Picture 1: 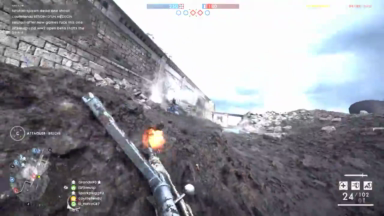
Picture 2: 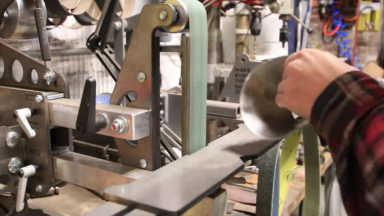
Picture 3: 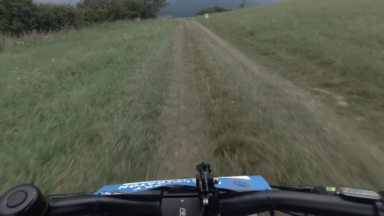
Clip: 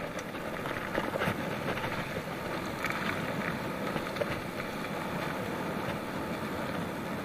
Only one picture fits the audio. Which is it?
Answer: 3